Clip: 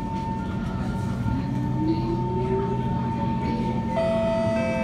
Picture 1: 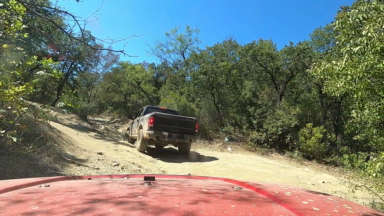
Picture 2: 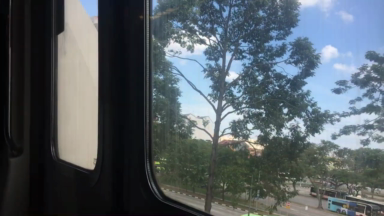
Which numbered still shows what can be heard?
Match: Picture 2